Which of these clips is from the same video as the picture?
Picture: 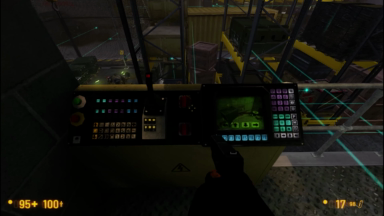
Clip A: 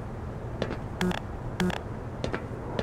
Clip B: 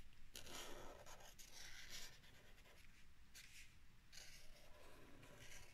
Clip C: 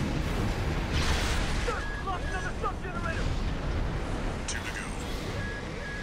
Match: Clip A